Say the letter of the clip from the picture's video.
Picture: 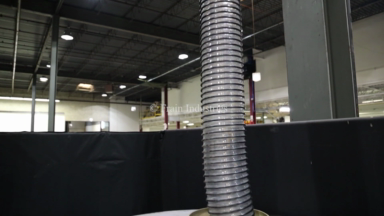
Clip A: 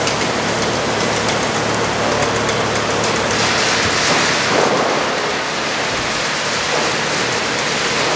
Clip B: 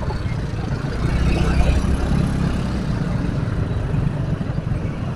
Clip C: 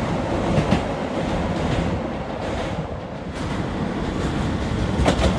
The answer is A